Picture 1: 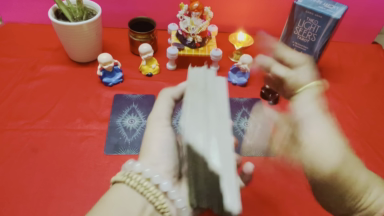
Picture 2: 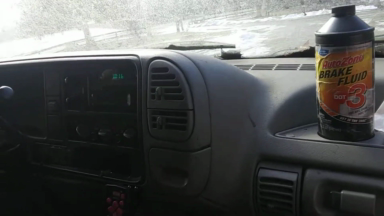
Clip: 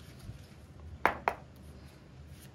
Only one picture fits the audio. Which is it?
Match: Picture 1